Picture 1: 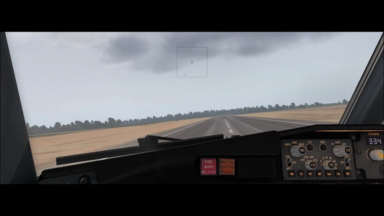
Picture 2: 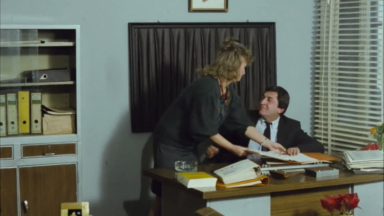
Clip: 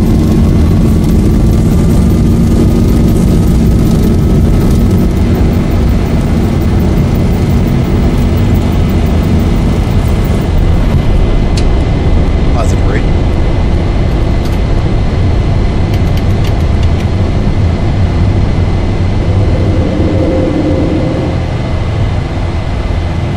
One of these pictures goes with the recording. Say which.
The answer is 1